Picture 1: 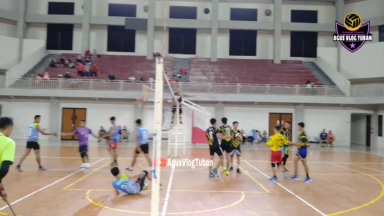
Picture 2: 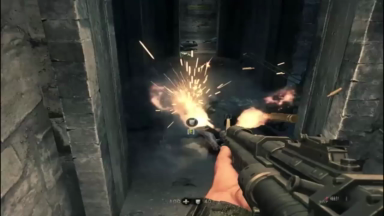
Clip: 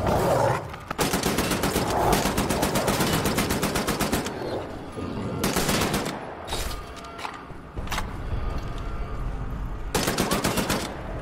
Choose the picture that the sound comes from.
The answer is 2